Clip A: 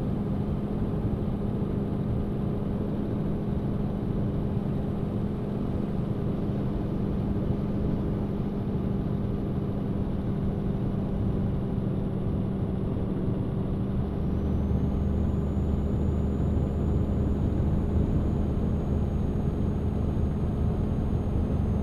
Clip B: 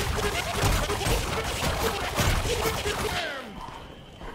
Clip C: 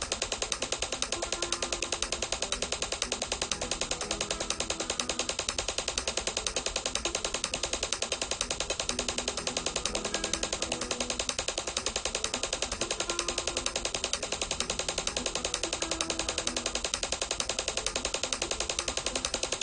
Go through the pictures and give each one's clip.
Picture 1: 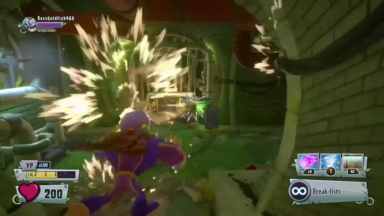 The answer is B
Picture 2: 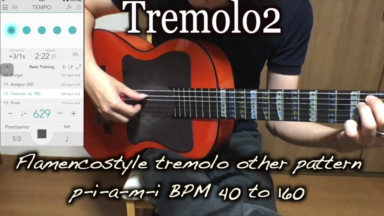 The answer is C